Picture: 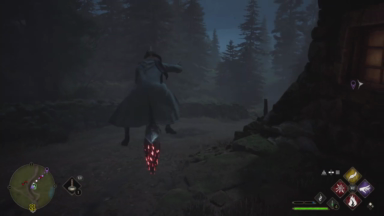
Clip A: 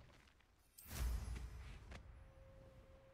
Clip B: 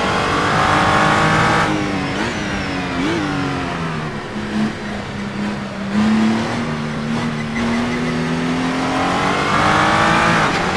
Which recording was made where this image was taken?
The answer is A